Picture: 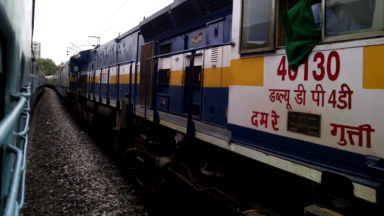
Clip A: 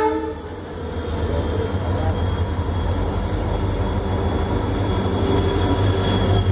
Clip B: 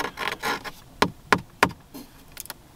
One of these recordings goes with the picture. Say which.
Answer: A